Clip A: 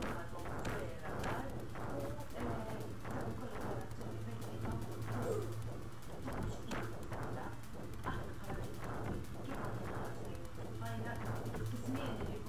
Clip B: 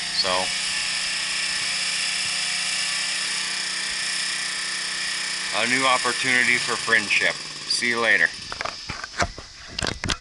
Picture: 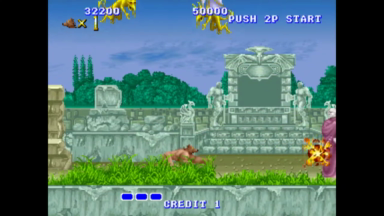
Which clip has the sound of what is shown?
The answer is A